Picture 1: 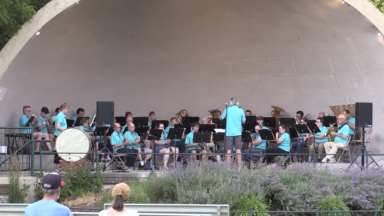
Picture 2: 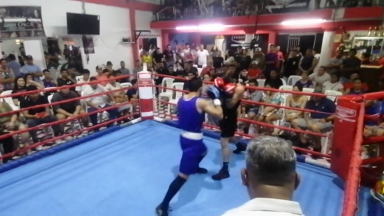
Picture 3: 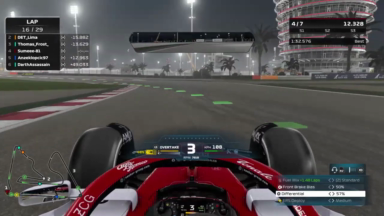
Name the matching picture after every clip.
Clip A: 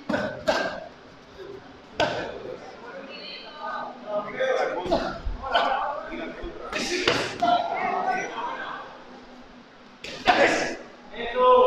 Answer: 2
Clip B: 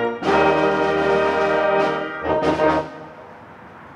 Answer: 1